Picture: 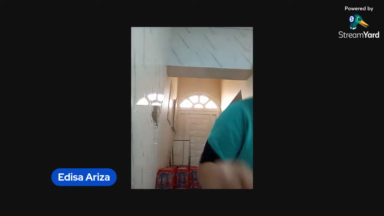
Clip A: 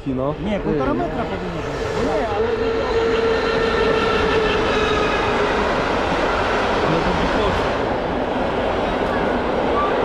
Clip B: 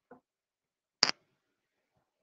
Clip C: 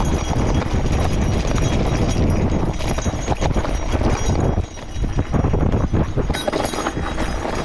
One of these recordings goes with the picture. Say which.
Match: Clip B